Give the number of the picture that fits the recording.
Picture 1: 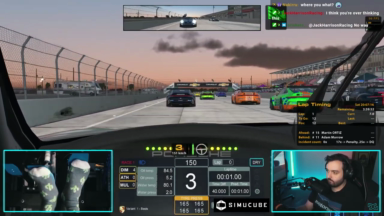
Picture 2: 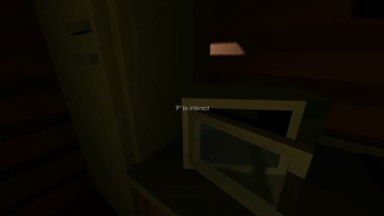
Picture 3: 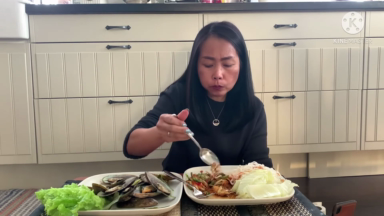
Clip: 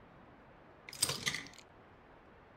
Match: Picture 2